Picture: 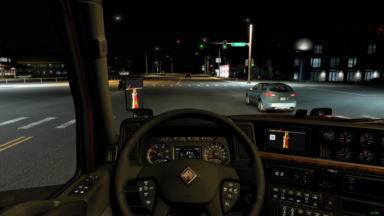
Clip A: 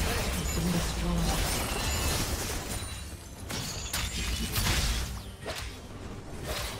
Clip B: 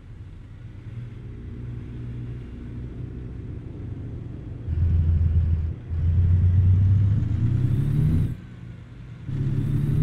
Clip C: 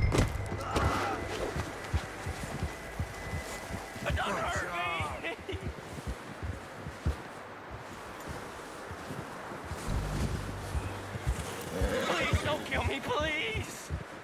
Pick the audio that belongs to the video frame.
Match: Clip B